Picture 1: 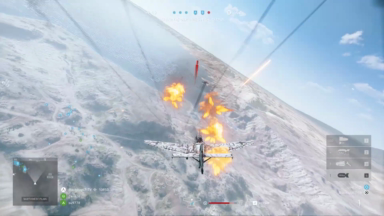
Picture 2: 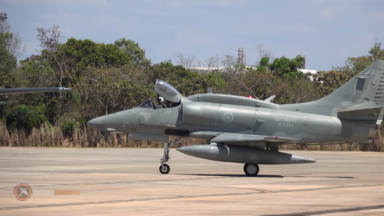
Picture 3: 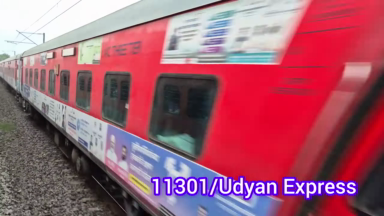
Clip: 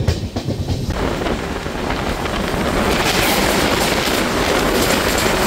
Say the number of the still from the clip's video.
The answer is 3